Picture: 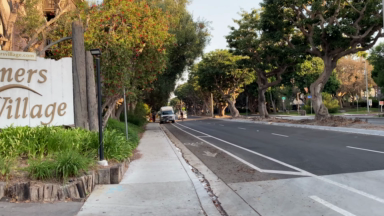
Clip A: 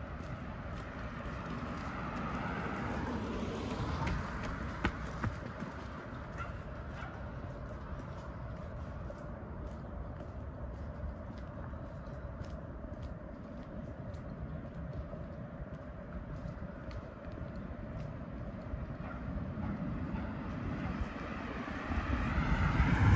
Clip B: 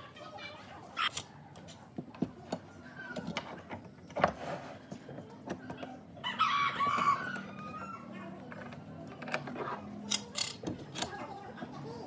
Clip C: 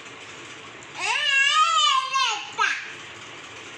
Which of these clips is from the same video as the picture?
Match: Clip A